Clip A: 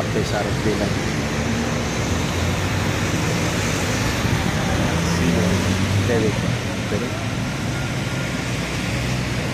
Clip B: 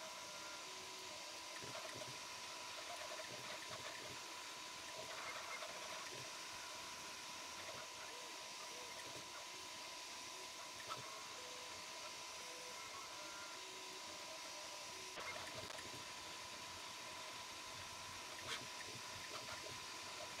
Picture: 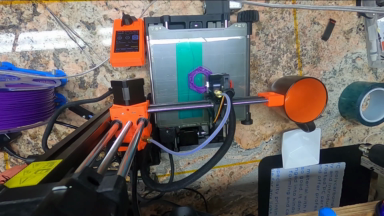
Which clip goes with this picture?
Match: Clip B